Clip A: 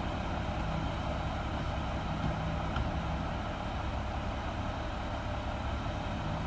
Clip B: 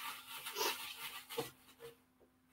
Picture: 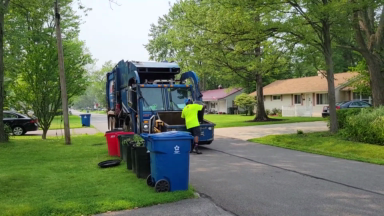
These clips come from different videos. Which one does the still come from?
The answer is A